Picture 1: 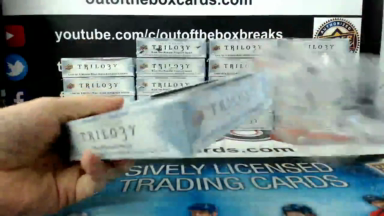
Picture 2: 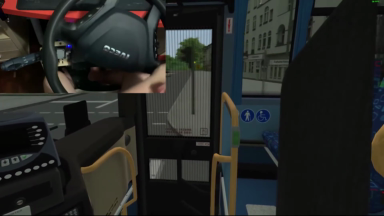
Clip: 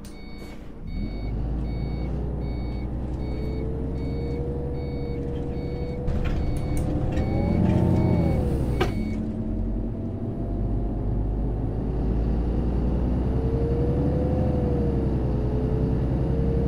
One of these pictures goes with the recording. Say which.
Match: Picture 2